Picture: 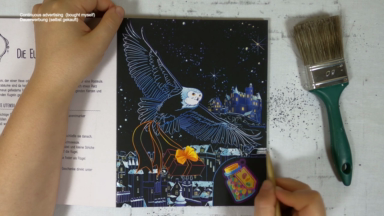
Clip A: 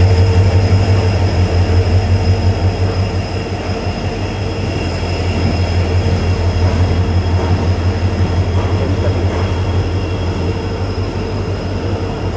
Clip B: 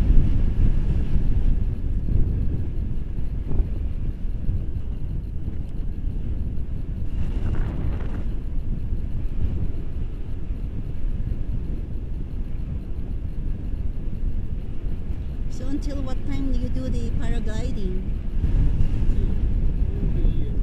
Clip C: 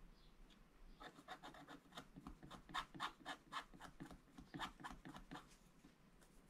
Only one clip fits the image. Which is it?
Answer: C